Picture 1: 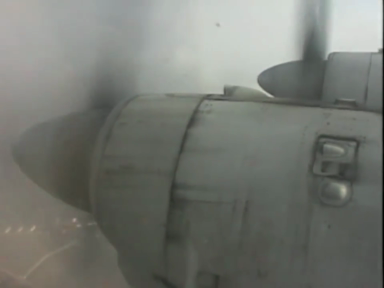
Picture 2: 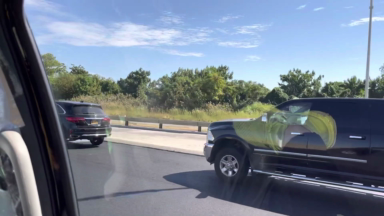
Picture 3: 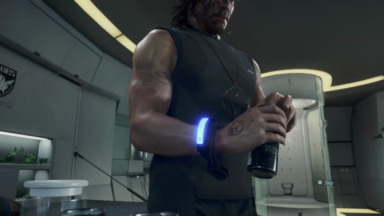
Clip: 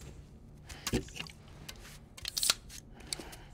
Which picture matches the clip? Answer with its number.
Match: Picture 3